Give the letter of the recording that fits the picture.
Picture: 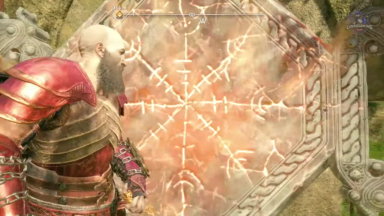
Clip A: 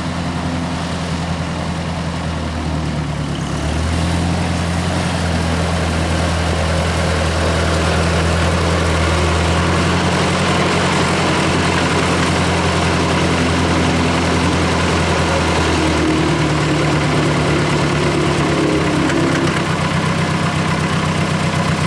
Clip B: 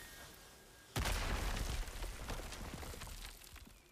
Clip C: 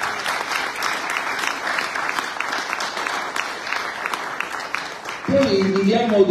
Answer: B